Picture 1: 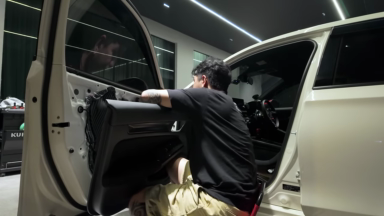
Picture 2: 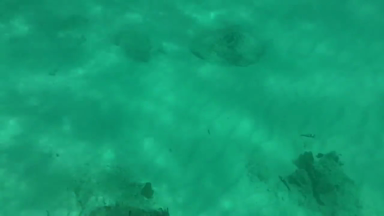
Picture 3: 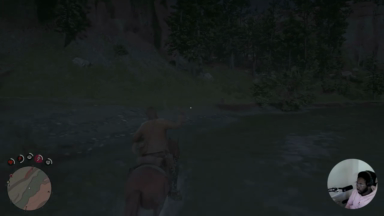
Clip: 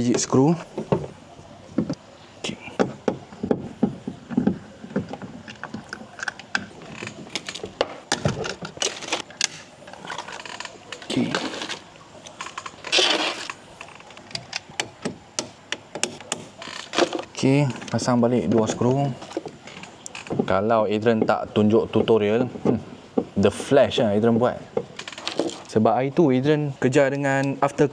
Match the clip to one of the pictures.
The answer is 1